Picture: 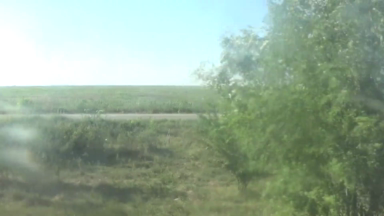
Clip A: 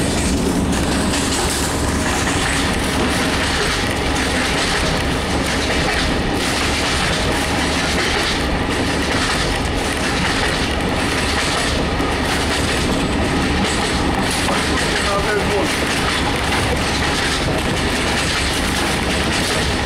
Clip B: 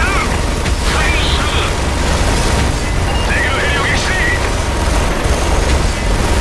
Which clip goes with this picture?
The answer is A